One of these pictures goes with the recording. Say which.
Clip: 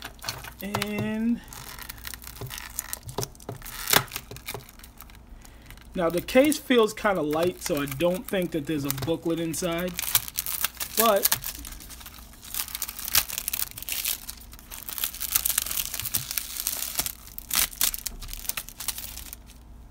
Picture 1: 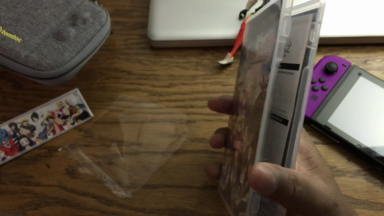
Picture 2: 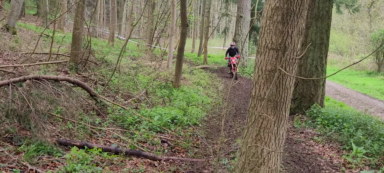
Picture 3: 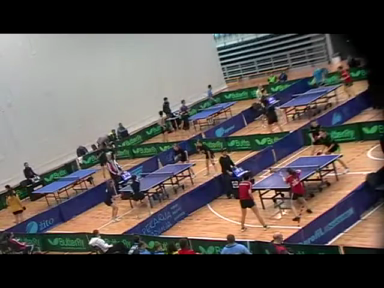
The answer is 1